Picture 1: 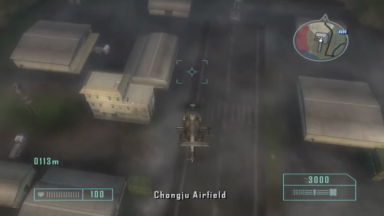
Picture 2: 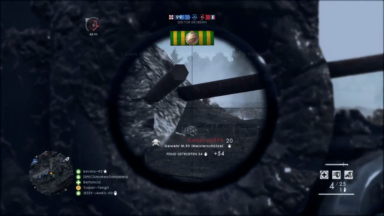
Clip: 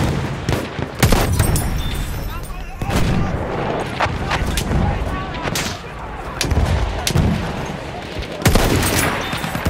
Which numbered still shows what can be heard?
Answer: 2